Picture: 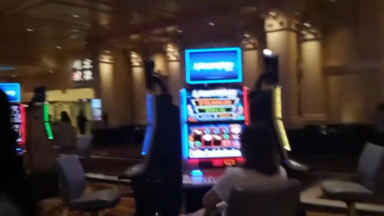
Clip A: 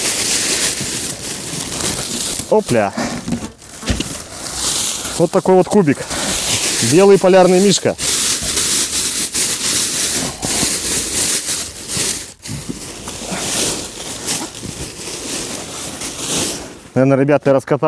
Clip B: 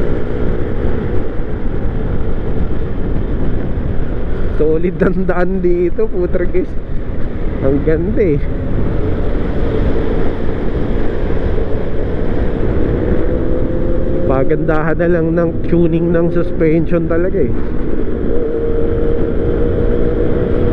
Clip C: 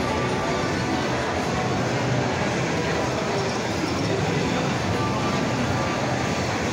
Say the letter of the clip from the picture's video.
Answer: C